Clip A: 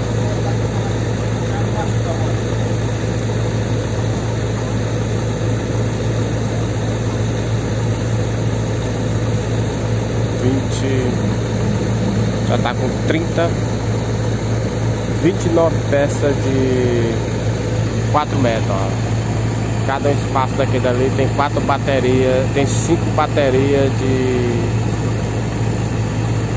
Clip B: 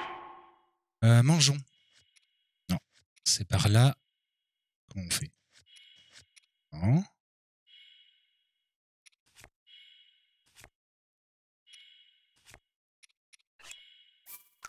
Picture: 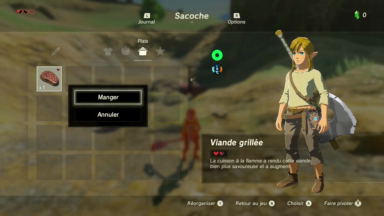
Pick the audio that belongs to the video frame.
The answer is B